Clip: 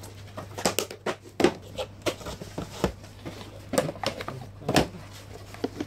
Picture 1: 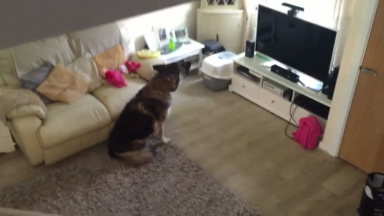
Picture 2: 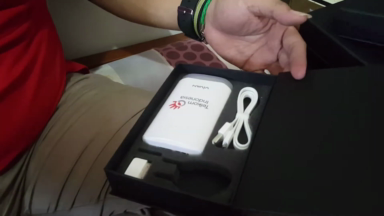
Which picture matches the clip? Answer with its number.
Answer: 2